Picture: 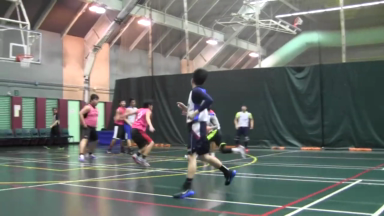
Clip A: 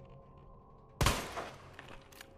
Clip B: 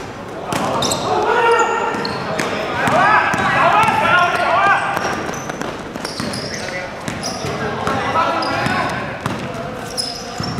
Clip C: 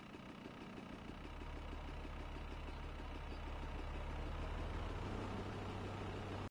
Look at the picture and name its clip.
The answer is B